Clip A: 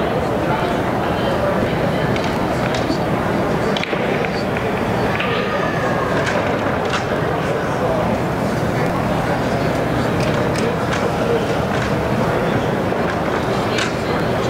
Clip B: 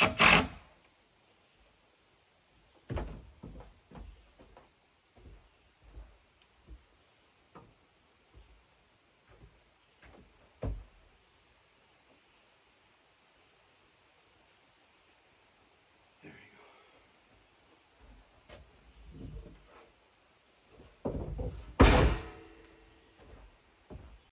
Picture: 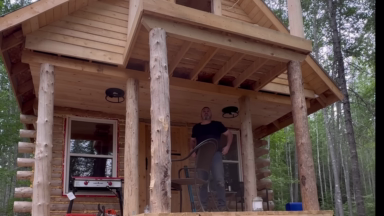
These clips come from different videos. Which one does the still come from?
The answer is B